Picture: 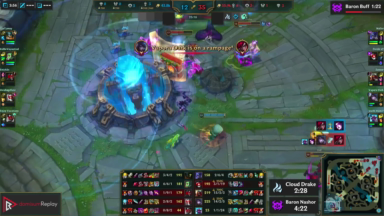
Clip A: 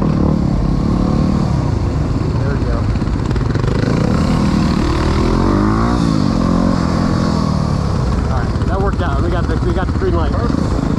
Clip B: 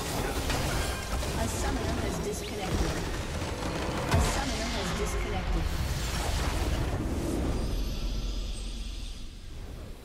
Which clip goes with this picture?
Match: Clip B